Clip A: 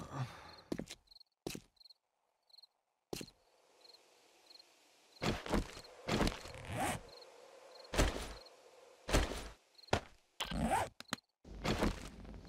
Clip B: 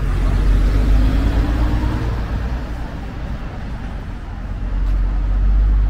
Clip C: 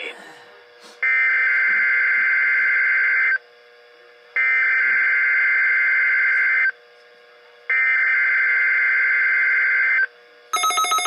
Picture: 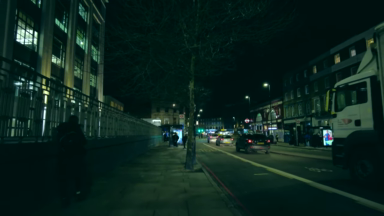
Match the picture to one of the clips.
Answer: B